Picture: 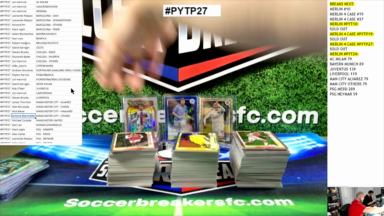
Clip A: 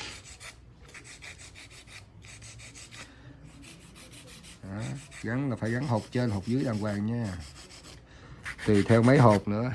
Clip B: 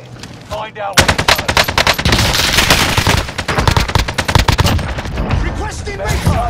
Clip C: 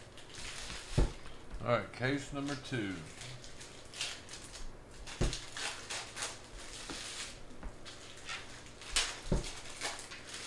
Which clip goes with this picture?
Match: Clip C